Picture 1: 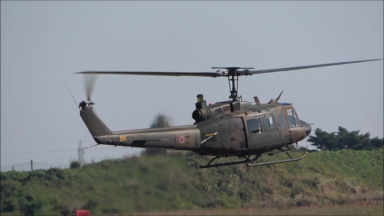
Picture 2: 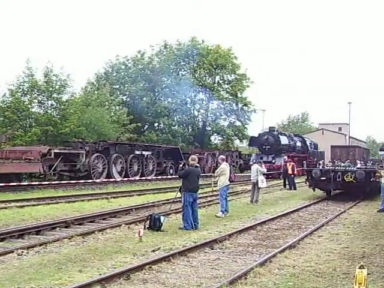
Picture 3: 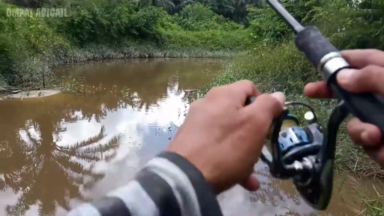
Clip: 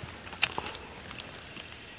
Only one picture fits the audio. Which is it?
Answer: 3